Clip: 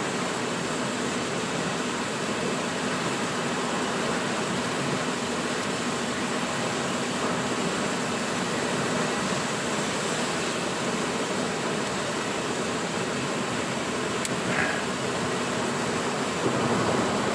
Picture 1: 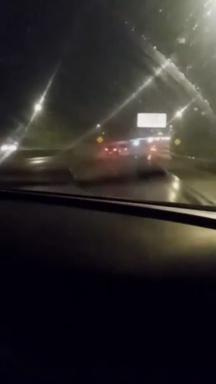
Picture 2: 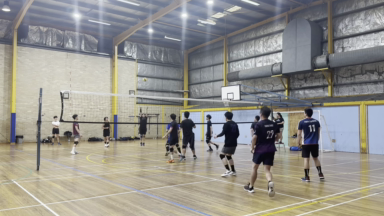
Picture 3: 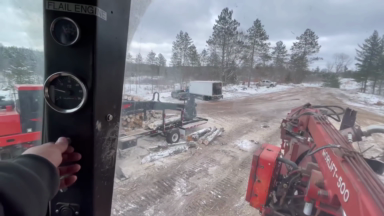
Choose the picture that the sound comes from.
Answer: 1